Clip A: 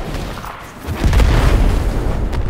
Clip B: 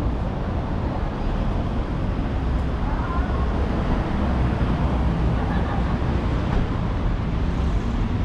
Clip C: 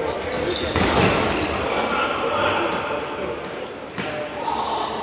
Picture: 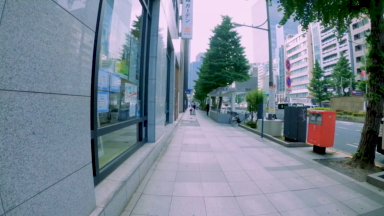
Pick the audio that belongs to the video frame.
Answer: B